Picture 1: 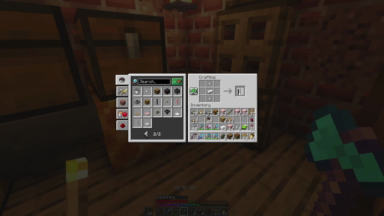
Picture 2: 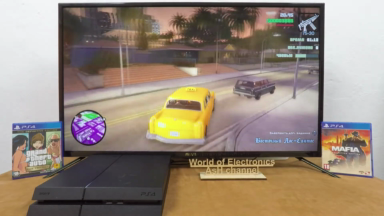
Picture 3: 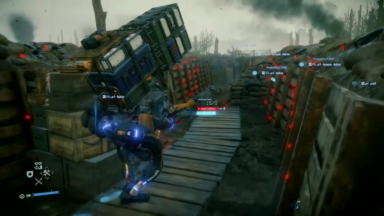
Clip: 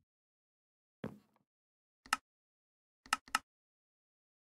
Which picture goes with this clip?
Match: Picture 1